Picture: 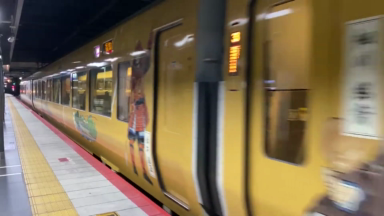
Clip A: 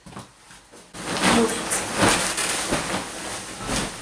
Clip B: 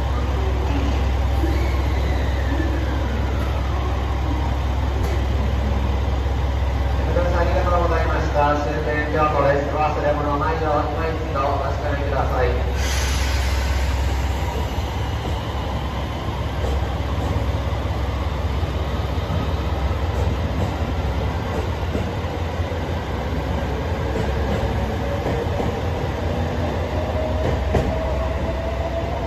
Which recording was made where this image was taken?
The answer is B